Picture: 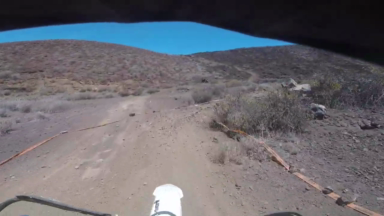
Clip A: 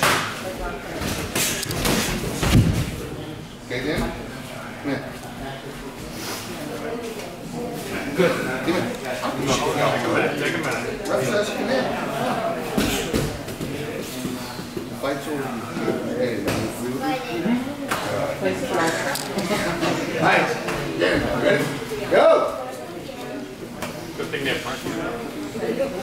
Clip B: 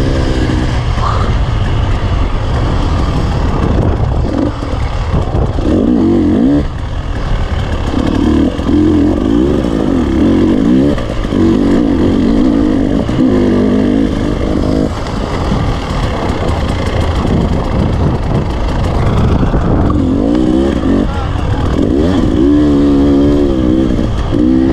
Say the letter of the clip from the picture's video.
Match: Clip B